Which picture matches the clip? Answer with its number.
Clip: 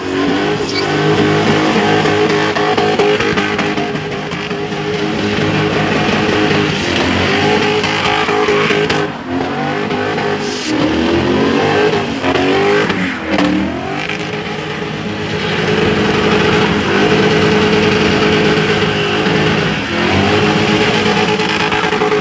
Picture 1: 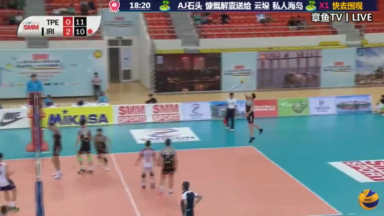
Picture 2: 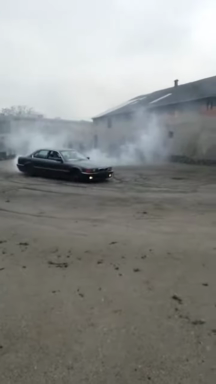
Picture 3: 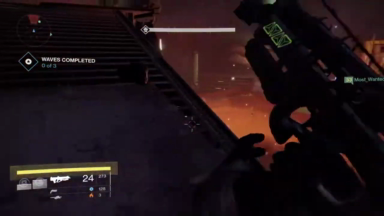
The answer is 2